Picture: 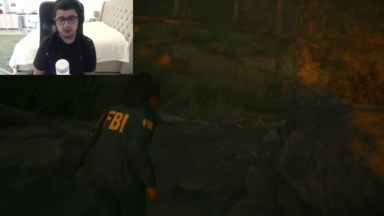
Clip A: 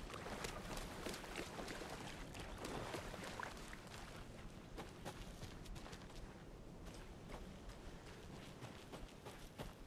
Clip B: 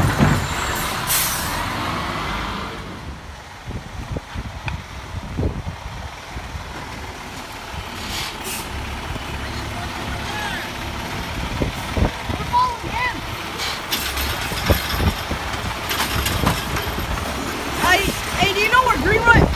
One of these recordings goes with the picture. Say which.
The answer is A